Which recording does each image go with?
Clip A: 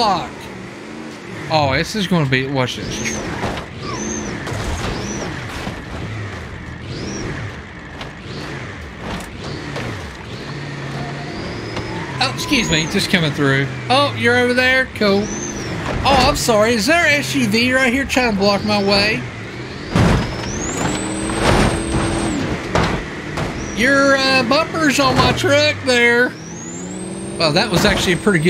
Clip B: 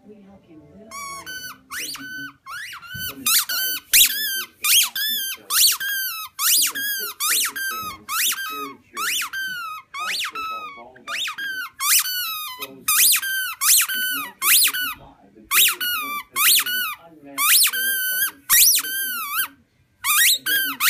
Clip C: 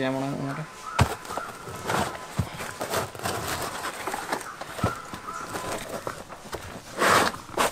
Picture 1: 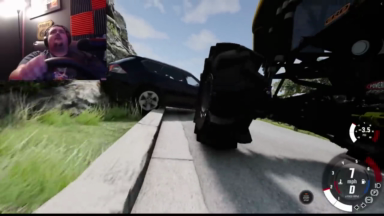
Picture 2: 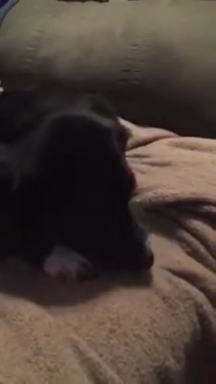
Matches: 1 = A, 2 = B